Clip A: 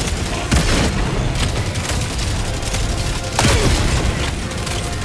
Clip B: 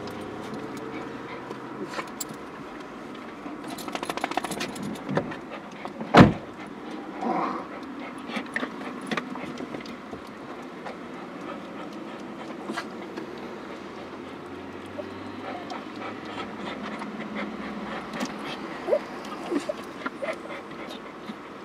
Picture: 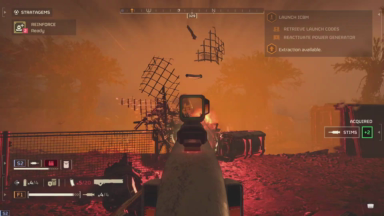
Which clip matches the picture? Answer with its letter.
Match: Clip A